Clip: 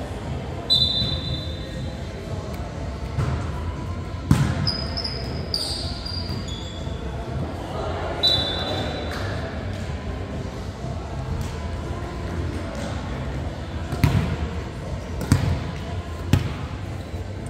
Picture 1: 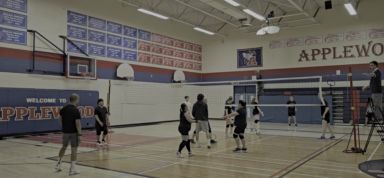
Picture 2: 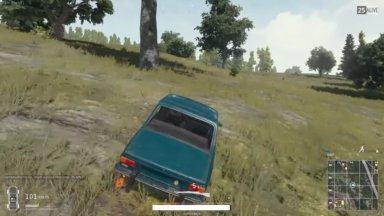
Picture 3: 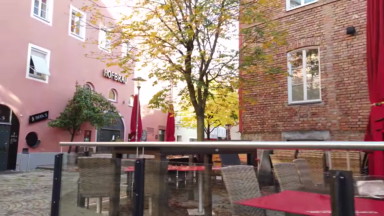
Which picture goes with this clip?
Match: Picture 1